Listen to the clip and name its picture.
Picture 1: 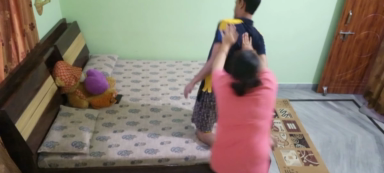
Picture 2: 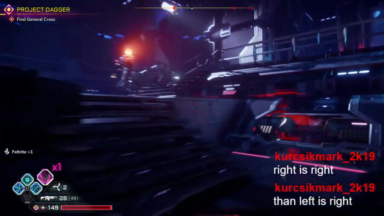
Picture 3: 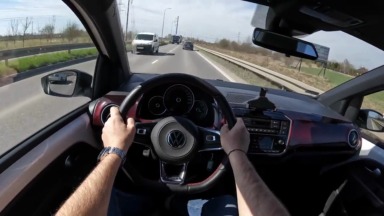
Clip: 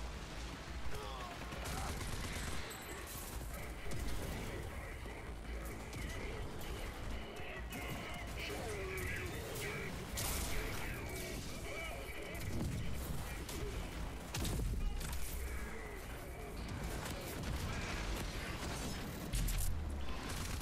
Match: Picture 2